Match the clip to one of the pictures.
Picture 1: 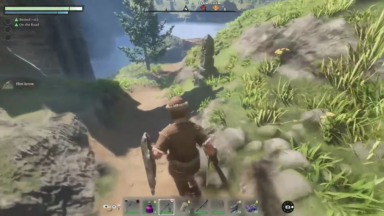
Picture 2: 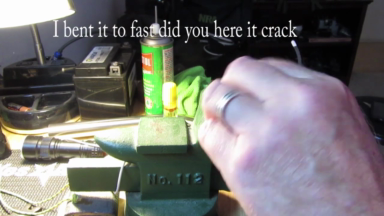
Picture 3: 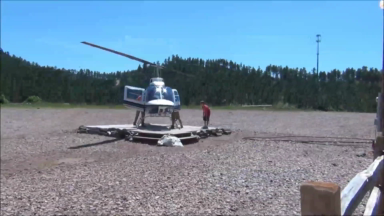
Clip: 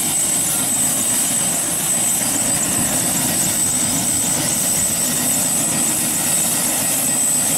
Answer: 3